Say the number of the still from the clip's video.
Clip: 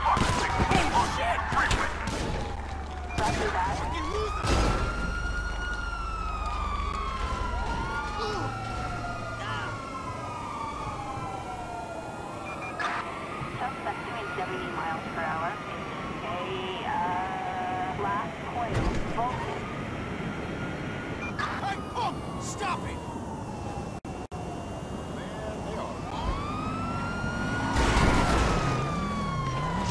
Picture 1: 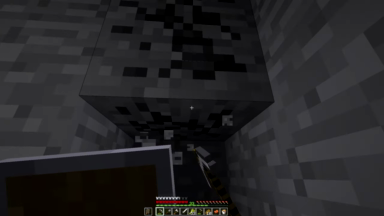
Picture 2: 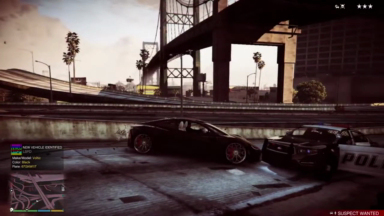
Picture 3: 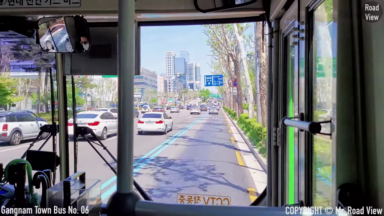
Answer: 2